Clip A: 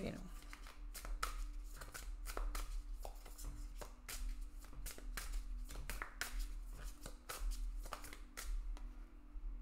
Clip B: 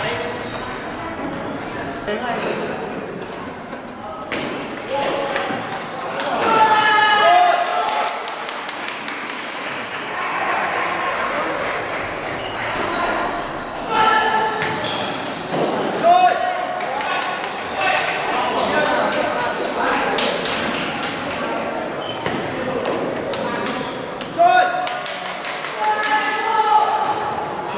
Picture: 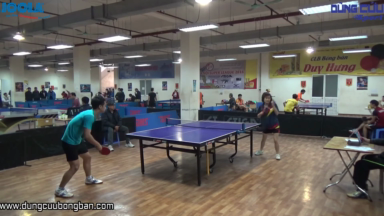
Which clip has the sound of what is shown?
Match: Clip B